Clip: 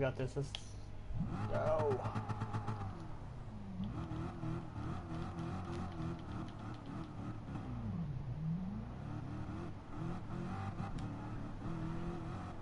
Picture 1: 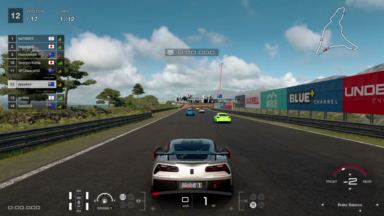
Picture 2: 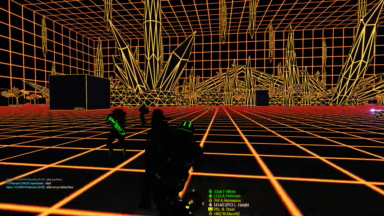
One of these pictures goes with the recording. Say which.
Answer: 1